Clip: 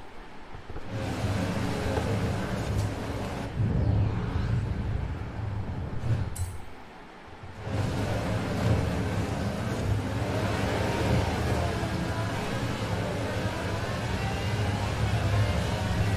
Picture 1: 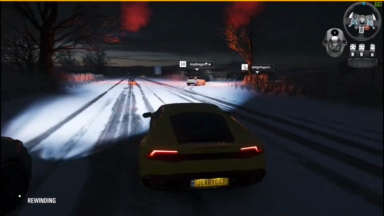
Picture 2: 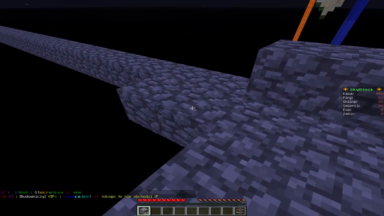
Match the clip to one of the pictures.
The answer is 1